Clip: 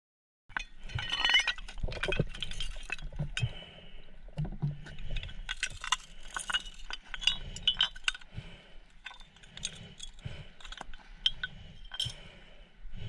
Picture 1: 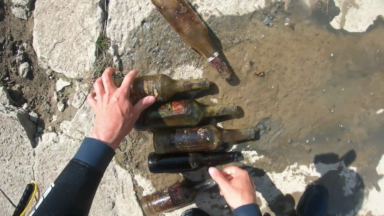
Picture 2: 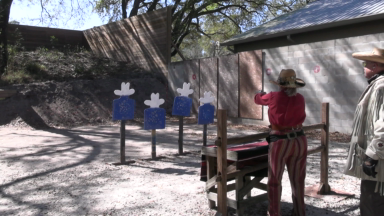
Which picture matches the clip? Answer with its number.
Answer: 1